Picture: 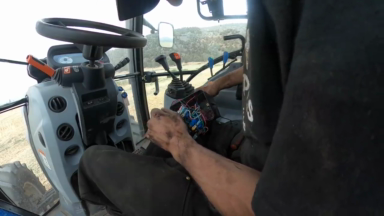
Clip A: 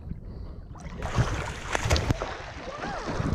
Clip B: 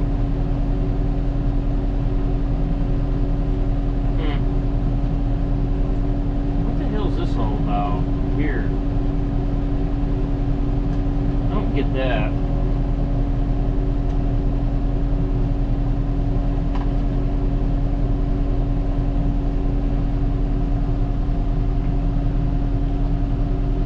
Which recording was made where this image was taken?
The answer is B